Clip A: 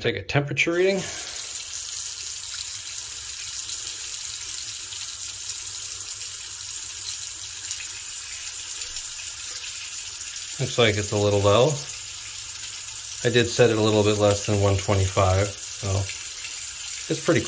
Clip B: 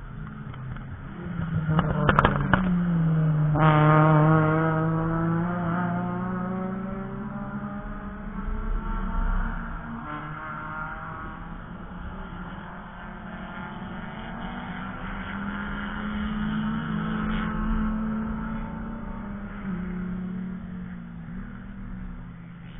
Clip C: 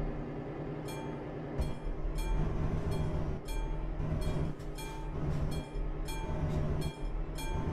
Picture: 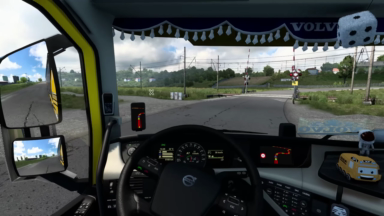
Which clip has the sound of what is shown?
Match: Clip C